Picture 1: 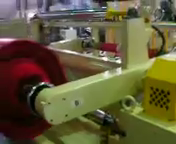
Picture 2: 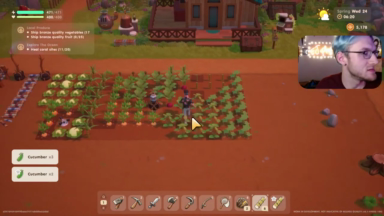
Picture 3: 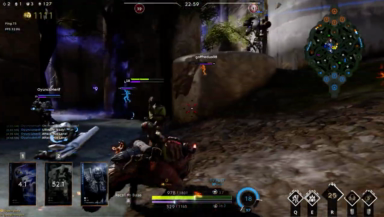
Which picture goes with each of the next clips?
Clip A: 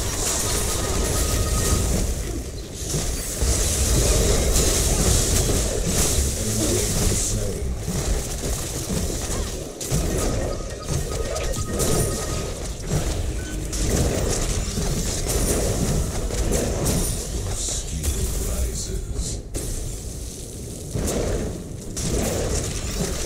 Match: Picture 3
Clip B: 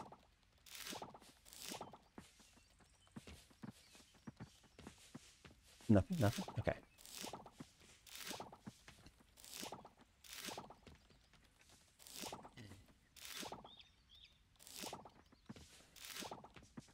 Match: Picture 2